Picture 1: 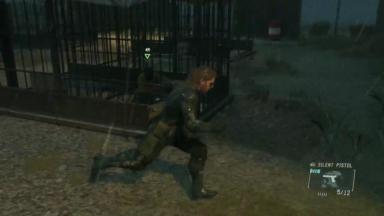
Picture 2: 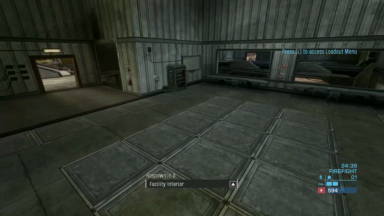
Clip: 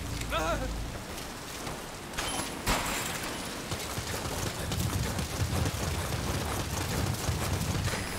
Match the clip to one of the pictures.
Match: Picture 1